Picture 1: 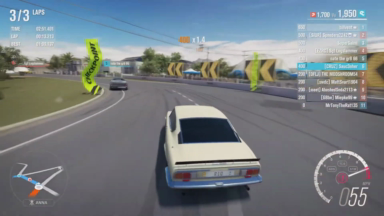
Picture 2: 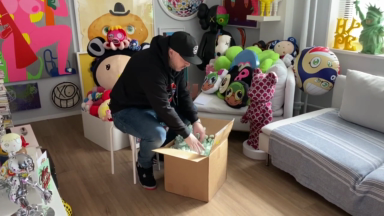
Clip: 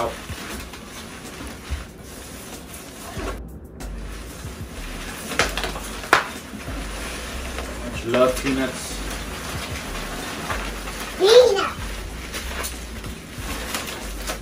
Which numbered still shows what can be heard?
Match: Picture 2